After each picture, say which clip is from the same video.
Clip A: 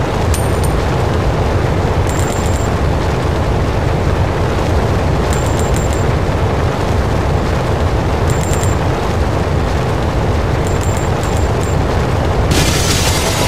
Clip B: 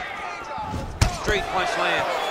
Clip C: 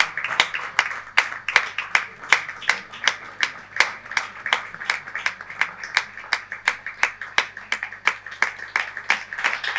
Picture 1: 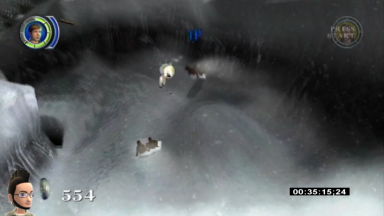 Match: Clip A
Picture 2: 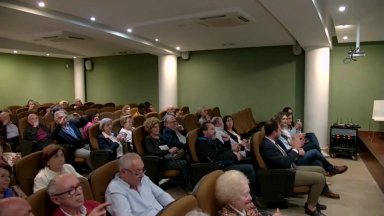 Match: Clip C